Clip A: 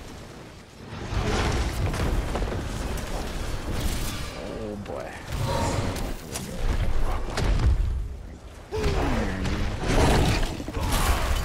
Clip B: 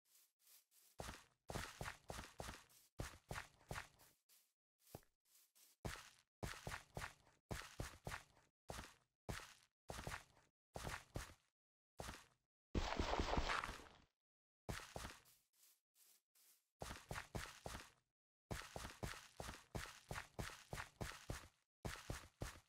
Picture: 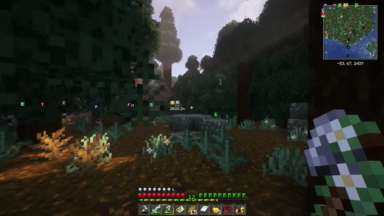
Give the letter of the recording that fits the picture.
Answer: B